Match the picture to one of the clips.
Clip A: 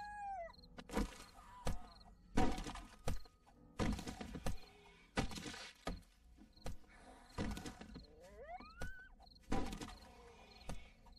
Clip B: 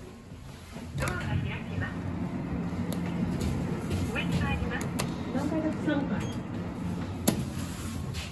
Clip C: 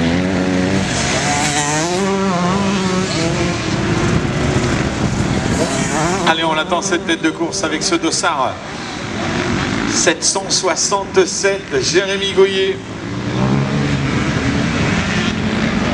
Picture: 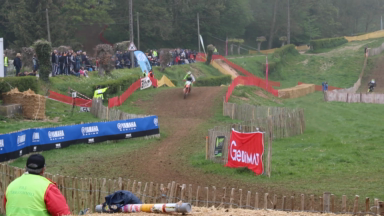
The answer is C